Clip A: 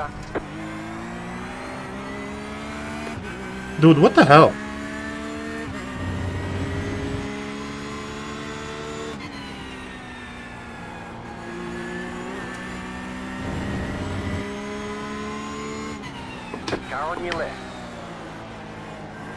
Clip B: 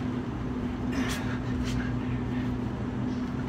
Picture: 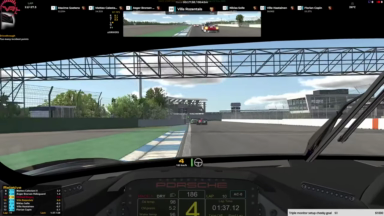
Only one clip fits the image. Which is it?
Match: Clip A